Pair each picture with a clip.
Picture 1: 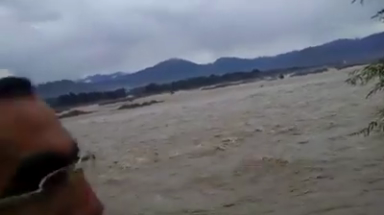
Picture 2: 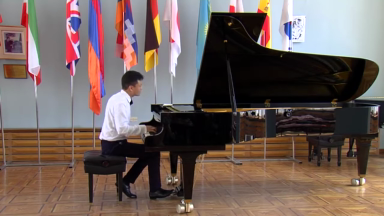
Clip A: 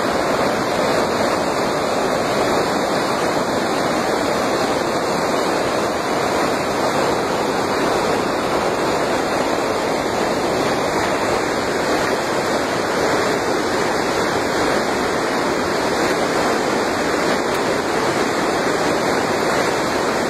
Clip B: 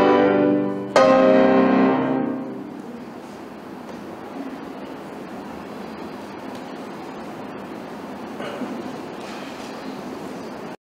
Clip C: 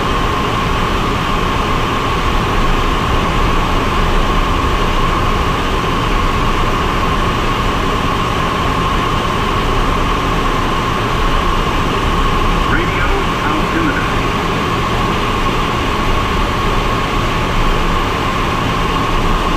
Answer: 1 A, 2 B